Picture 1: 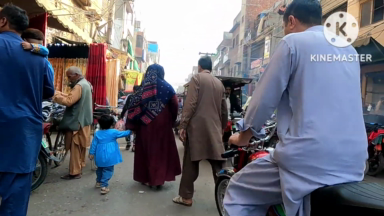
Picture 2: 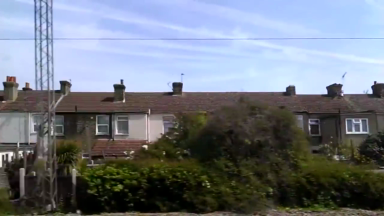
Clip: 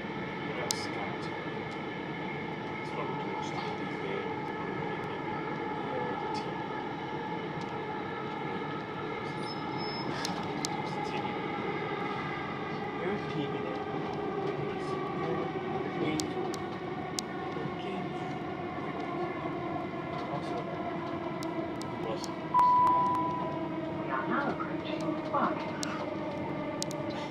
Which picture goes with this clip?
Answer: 2